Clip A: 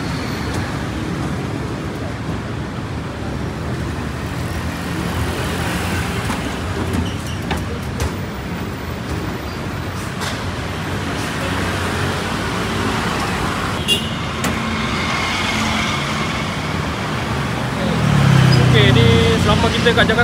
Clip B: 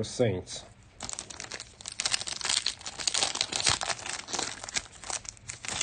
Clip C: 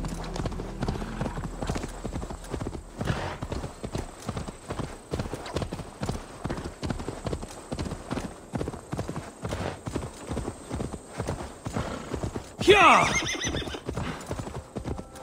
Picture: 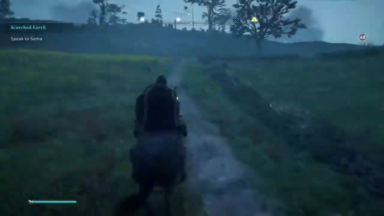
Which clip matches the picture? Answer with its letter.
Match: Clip C